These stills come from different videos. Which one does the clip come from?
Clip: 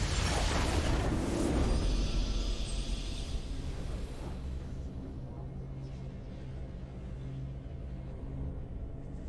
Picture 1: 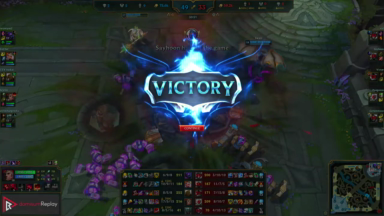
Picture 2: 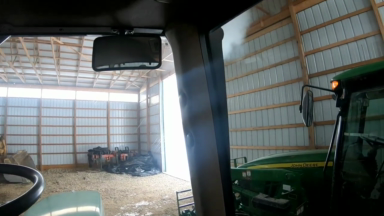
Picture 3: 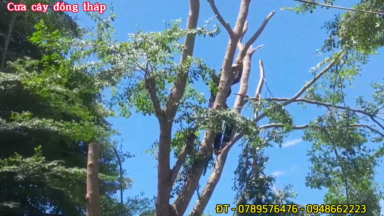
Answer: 1